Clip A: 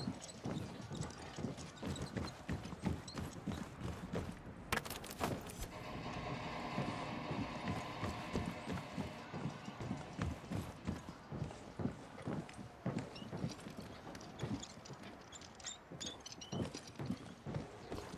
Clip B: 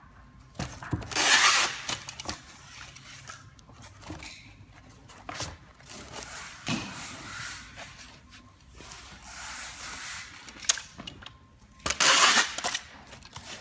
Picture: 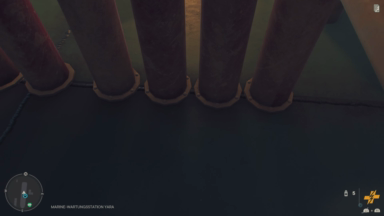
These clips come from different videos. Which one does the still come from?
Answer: A